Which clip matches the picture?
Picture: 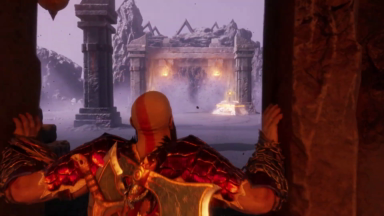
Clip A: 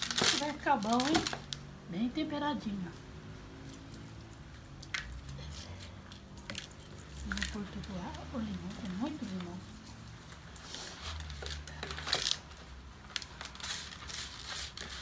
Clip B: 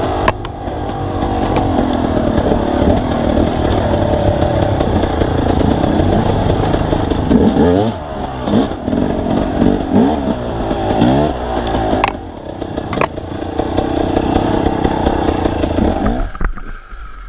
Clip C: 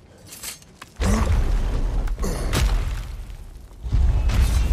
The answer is C